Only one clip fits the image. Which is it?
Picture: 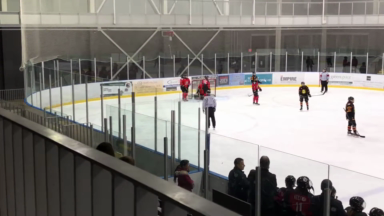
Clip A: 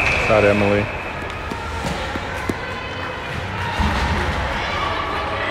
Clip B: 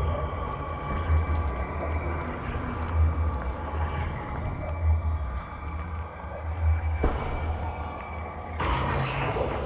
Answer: A